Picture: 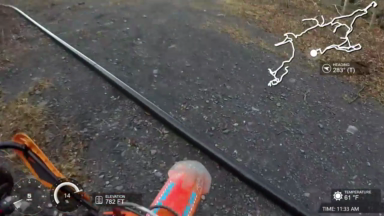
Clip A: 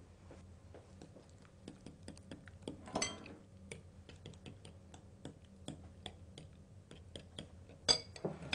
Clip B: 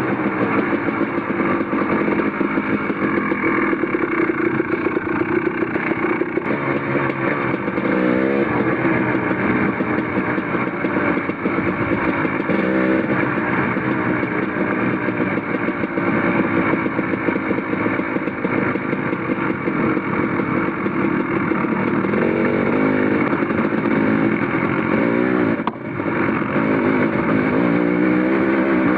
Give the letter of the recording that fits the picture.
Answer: B